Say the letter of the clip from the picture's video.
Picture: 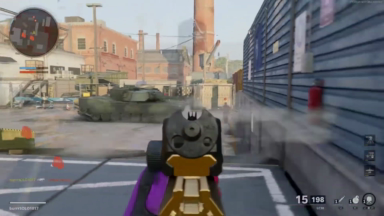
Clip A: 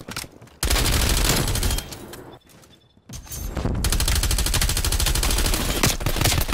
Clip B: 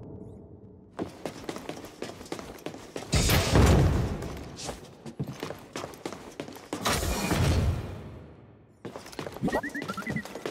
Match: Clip A